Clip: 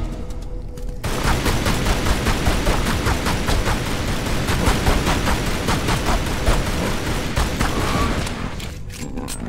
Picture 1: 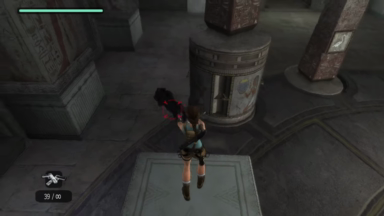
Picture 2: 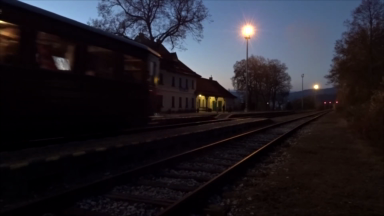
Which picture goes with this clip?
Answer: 1